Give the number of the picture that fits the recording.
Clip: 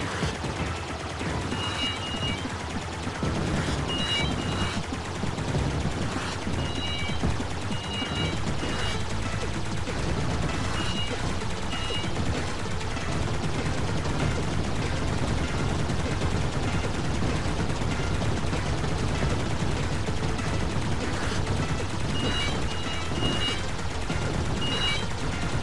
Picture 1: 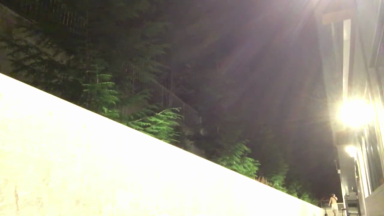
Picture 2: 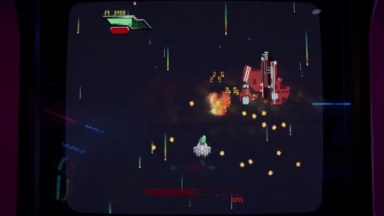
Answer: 2